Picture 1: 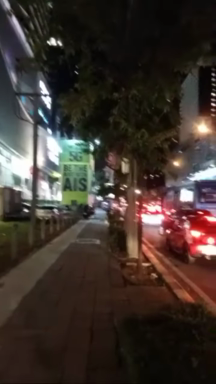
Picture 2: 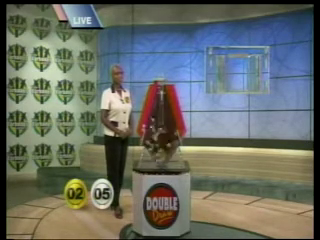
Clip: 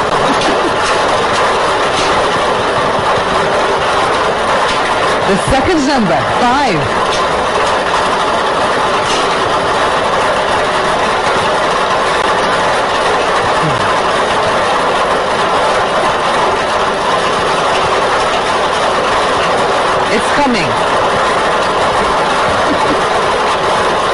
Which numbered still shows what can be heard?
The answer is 2